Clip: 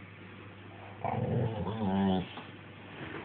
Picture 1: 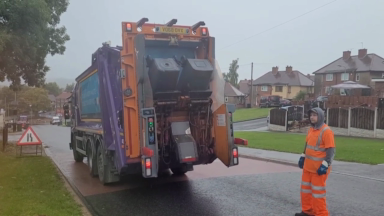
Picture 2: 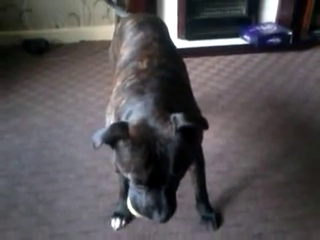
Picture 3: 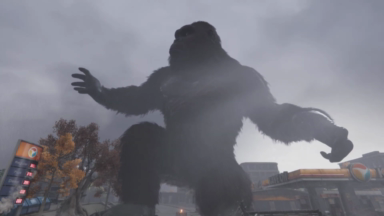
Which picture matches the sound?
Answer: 2